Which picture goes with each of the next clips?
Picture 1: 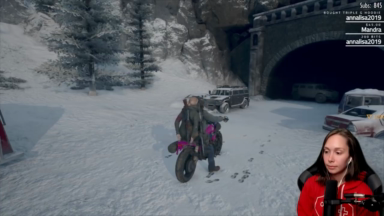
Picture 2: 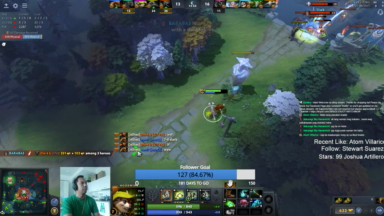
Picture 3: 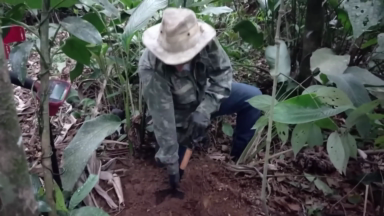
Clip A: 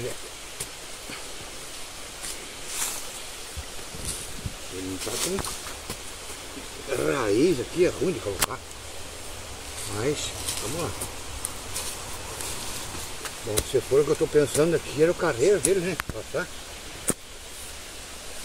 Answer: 3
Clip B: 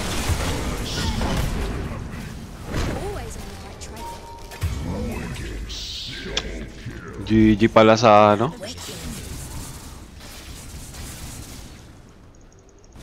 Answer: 2